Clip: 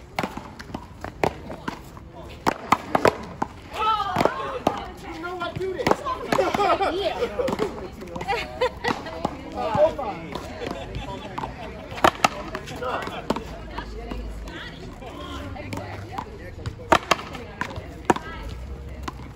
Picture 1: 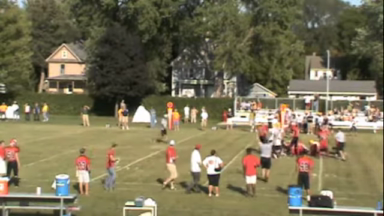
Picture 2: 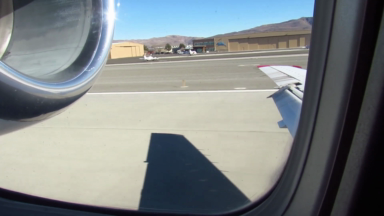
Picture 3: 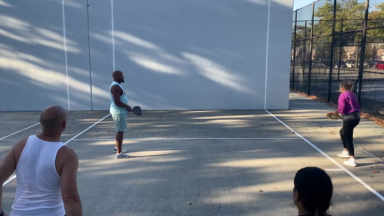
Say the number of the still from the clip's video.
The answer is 3